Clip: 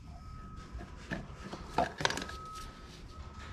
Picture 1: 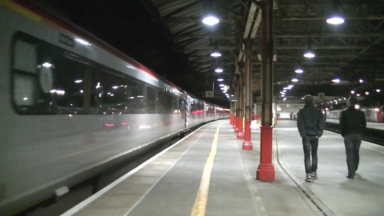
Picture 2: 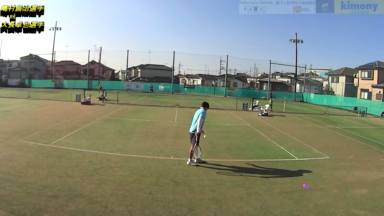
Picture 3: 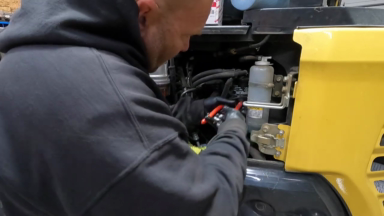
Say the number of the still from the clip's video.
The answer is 3